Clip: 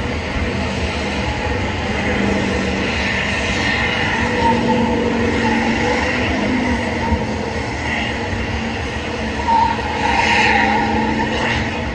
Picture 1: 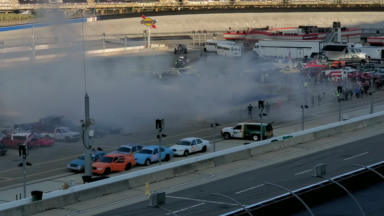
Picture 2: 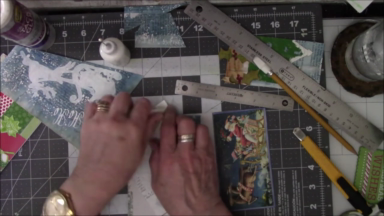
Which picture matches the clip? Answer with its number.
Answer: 1